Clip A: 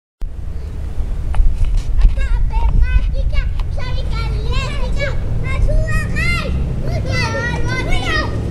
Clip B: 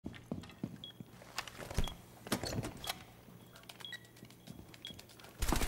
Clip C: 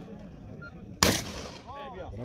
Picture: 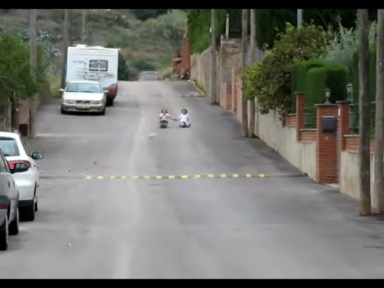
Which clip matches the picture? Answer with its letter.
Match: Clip A